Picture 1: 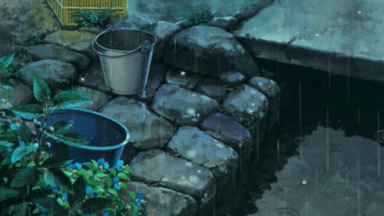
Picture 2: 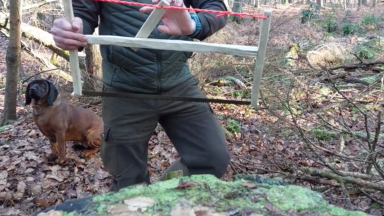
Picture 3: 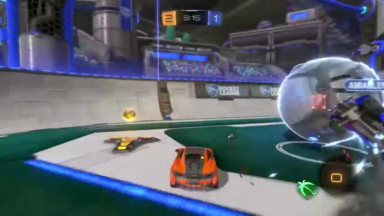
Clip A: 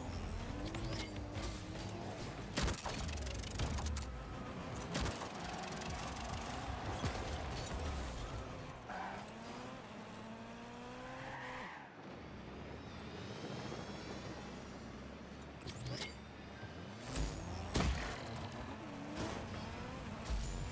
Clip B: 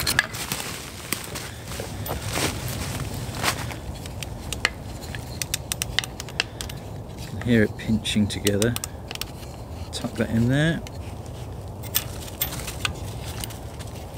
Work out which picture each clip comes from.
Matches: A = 3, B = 2